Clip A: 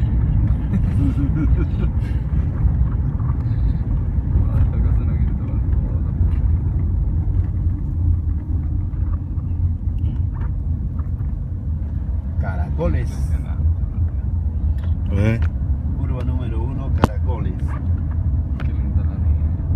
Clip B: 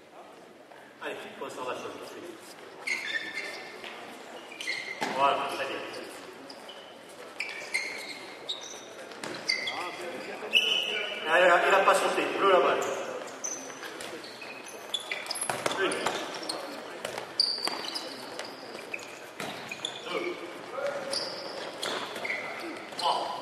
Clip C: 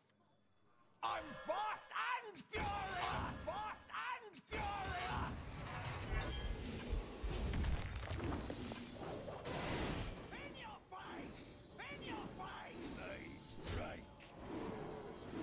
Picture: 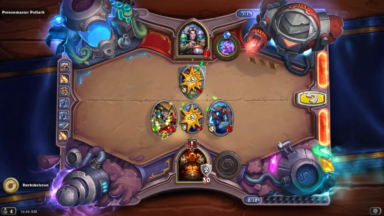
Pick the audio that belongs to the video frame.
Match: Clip C